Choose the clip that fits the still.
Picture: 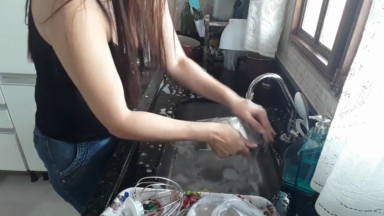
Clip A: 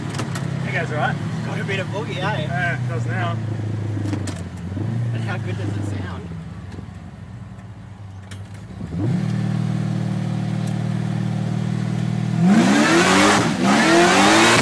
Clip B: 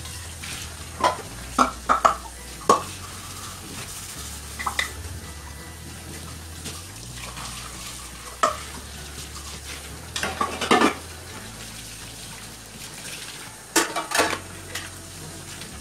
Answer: B